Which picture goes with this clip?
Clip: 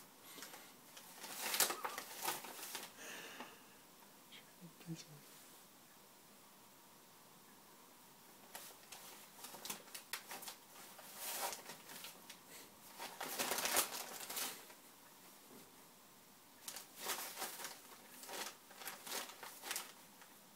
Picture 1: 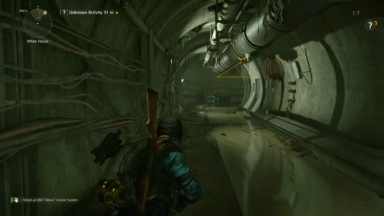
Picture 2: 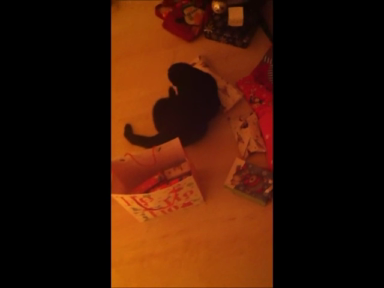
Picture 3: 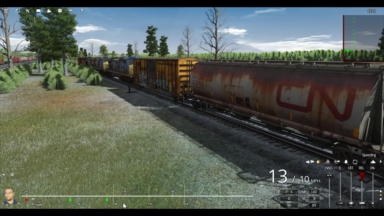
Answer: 2